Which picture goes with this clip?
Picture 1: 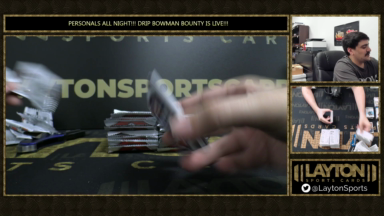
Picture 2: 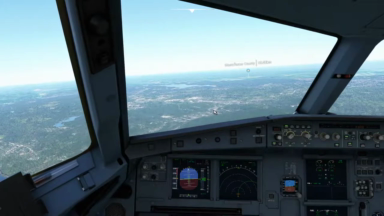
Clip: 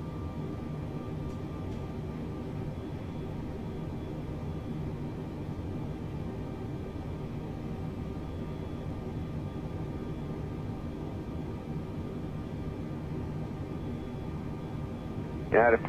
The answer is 2